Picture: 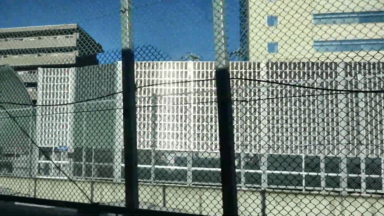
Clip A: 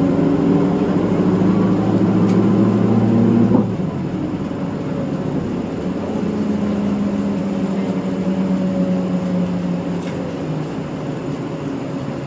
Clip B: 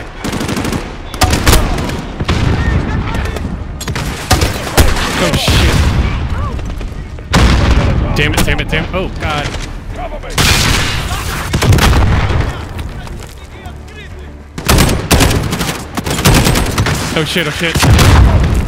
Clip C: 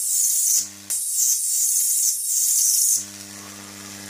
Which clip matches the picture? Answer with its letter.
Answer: A